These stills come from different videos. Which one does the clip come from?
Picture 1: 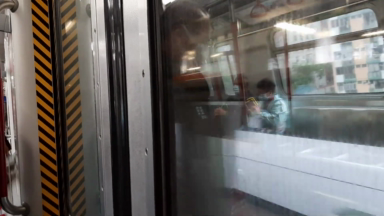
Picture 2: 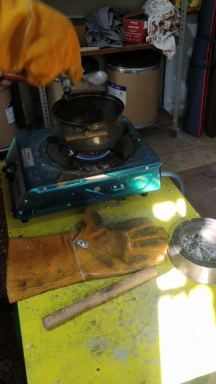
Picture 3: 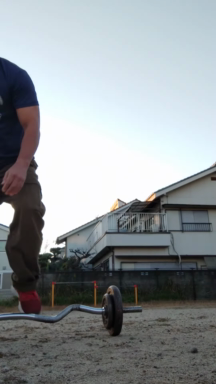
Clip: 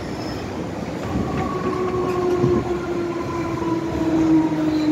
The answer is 1